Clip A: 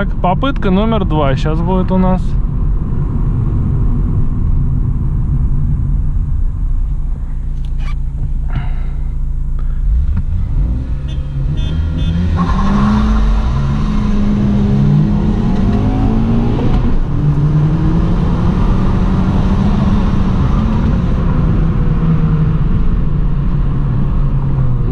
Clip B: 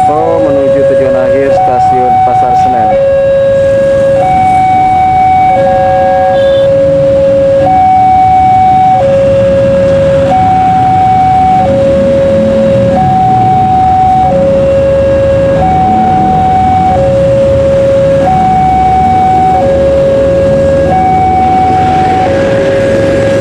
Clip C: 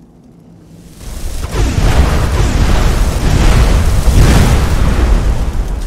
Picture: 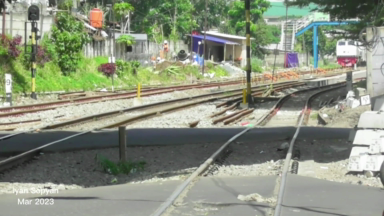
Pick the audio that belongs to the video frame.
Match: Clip B